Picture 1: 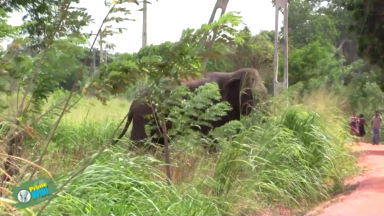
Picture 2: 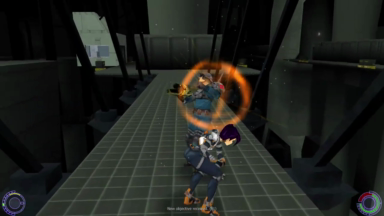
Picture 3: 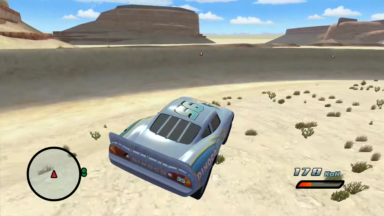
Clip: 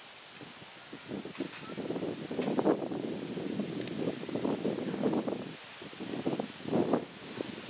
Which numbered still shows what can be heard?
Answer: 1